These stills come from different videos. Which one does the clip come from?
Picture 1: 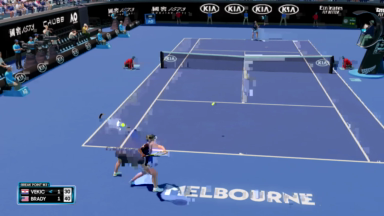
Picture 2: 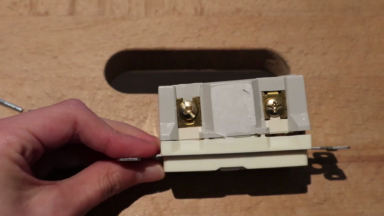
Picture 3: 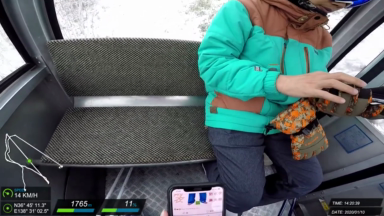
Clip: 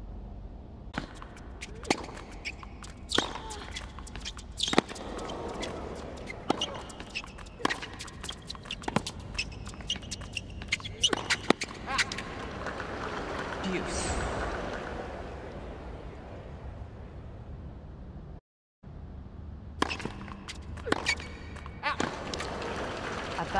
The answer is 1